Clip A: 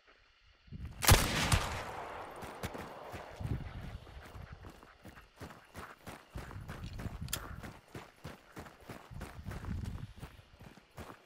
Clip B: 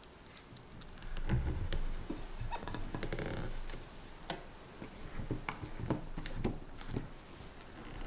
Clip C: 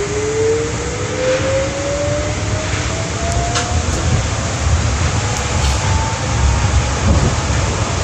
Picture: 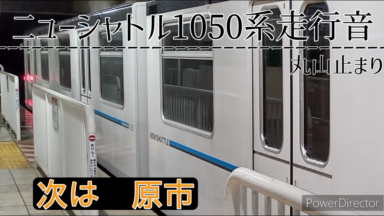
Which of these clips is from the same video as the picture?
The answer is C